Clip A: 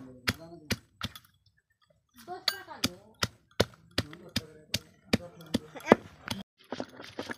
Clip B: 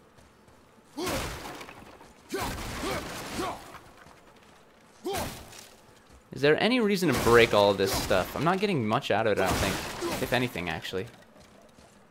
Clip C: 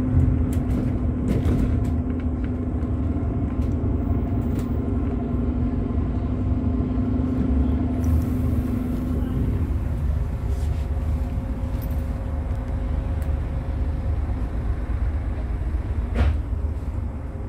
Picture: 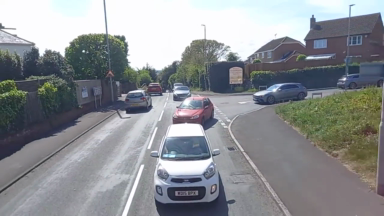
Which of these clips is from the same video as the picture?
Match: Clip C